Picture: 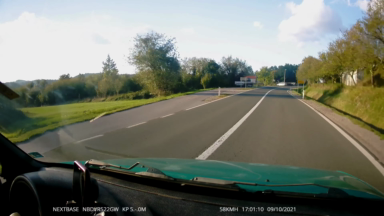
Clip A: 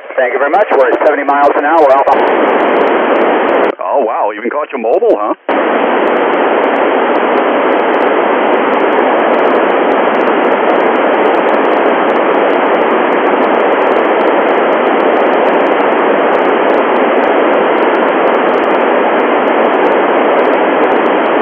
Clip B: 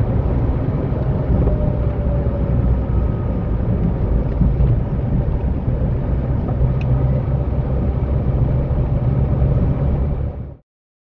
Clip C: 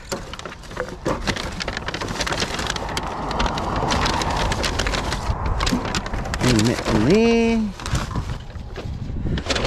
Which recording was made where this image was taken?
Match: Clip B